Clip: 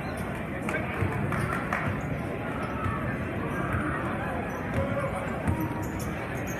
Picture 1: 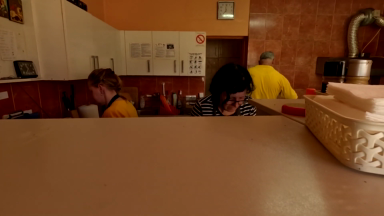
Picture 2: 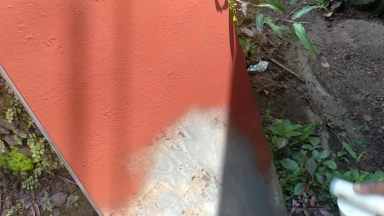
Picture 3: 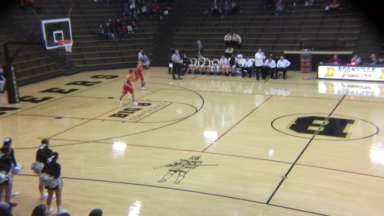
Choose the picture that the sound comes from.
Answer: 3